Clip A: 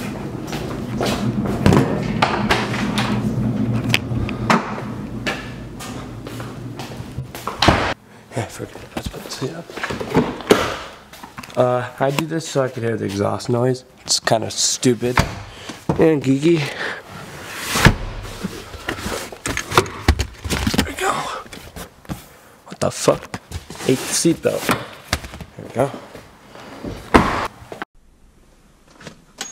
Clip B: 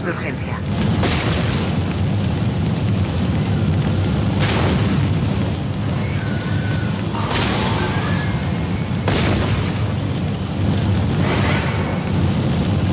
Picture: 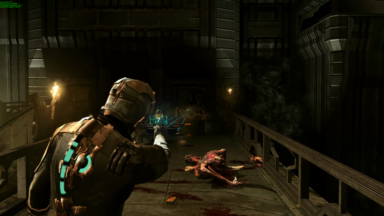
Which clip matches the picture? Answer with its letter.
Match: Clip B